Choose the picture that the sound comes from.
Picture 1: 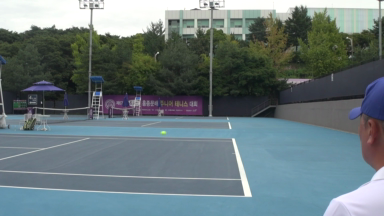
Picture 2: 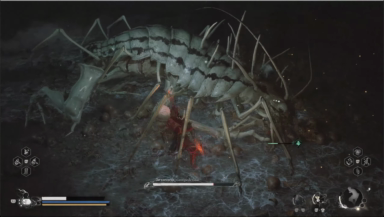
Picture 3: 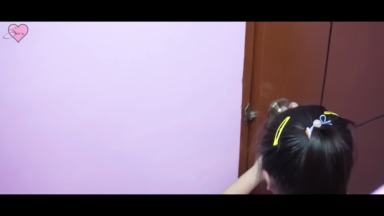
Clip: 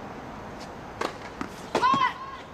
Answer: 1